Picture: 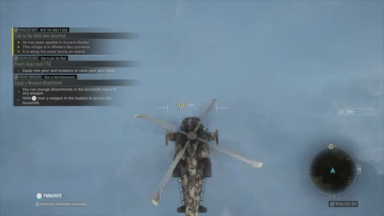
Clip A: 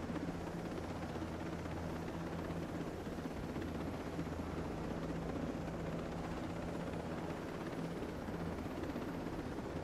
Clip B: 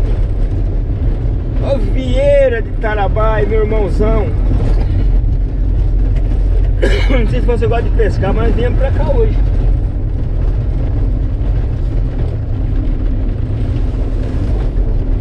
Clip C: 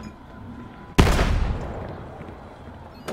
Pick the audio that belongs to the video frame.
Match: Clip A